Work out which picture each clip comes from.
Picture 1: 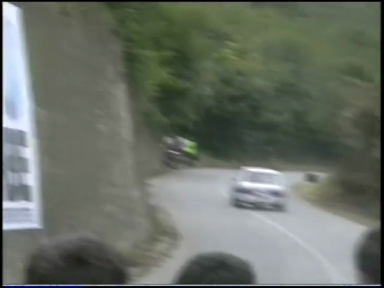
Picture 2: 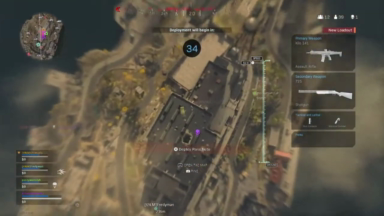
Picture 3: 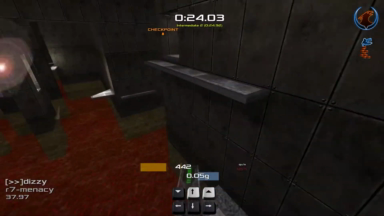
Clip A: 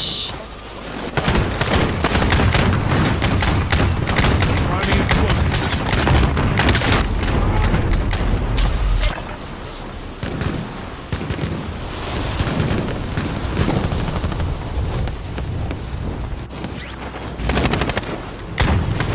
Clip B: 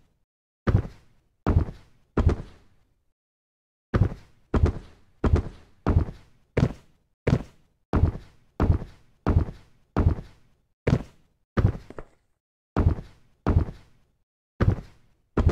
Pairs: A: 2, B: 3